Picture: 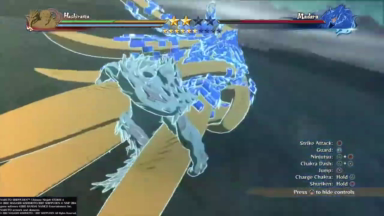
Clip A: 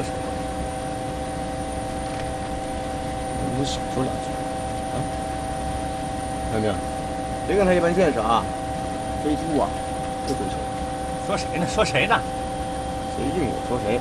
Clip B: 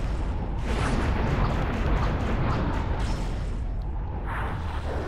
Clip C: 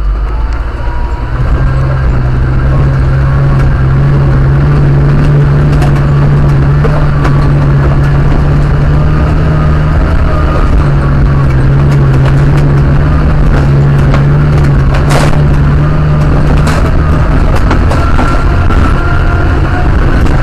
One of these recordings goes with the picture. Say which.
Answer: B